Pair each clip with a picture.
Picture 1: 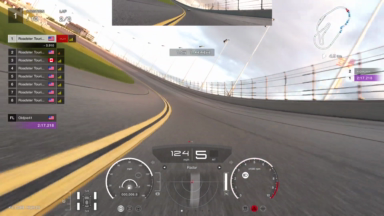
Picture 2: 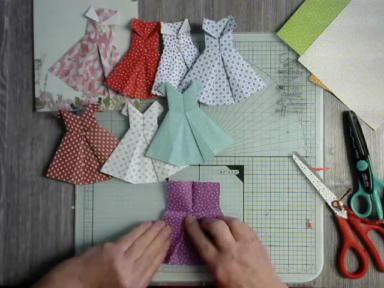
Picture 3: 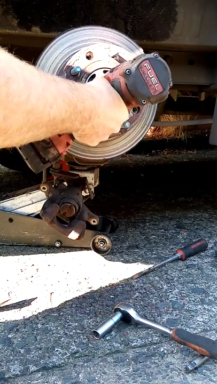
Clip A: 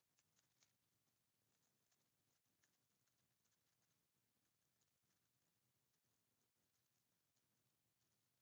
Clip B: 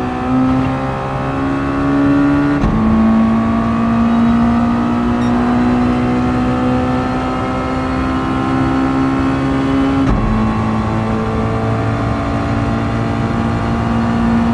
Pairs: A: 2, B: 1